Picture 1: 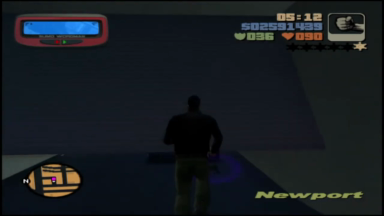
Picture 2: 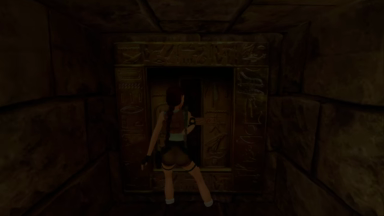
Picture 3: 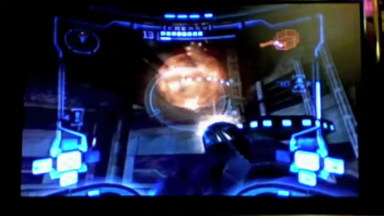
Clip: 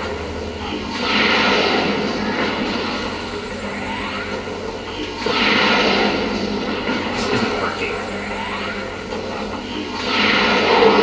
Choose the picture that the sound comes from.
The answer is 3